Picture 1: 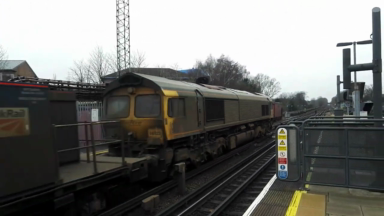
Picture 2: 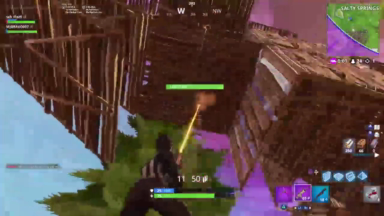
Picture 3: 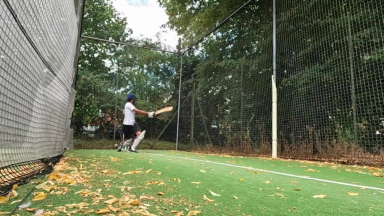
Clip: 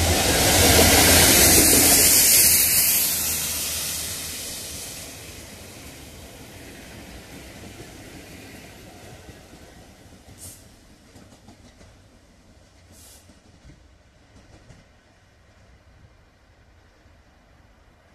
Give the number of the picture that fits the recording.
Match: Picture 1